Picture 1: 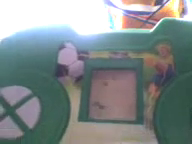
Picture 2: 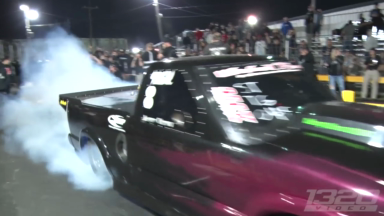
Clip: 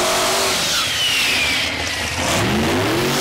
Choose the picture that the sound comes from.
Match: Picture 2